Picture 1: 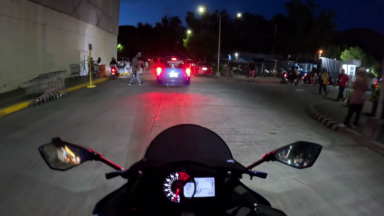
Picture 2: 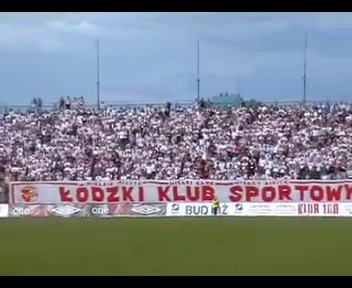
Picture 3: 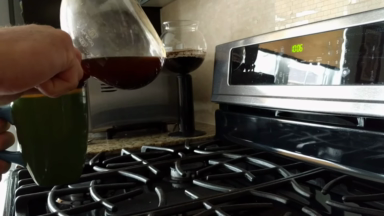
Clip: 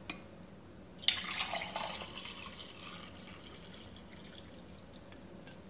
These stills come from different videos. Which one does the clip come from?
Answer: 3